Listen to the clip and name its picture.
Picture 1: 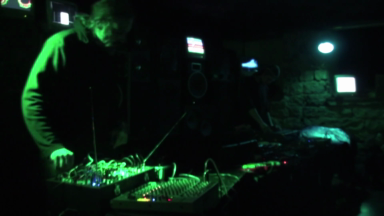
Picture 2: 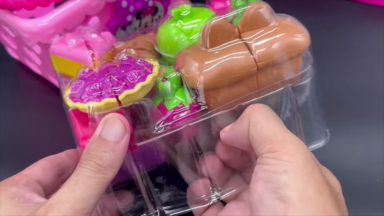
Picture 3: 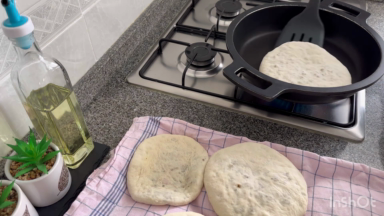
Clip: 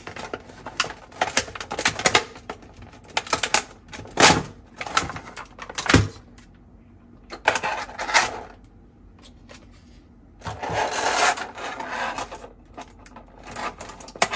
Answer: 2